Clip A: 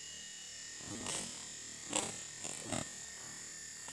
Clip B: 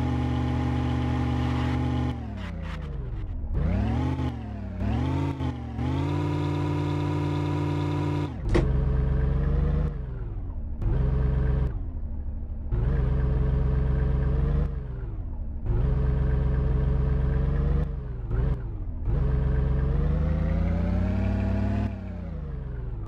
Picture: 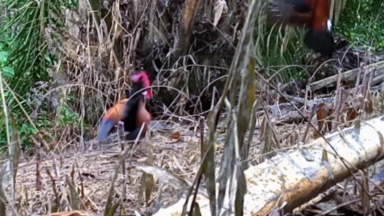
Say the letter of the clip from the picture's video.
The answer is A